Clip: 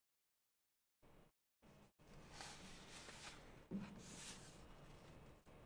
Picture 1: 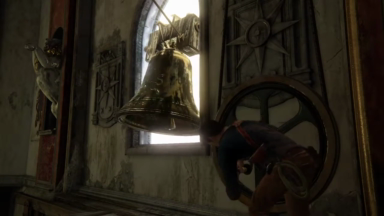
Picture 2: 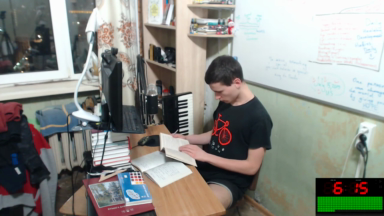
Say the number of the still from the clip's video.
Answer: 2